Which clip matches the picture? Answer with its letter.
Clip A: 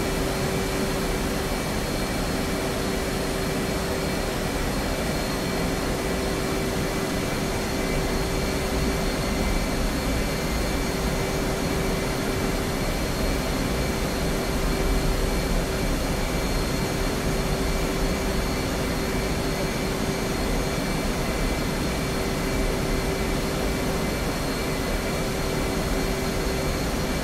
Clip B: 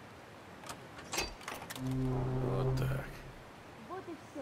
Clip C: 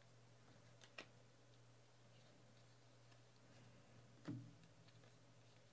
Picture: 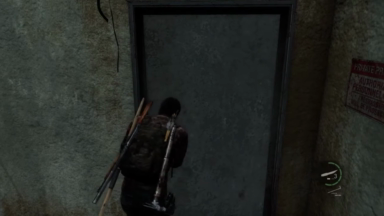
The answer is B